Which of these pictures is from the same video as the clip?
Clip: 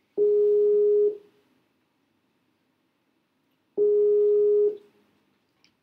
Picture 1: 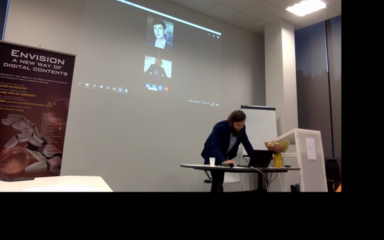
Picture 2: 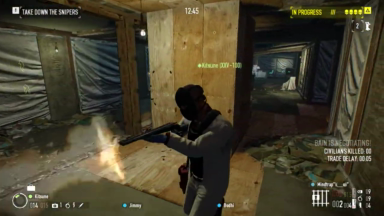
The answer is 1